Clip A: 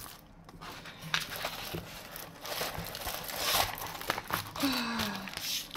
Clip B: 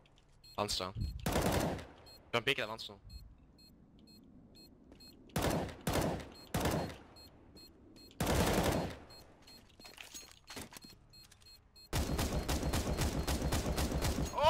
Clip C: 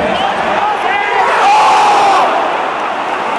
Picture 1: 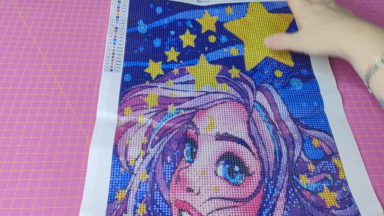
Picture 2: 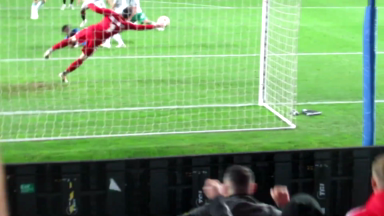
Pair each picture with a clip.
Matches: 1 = A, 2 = C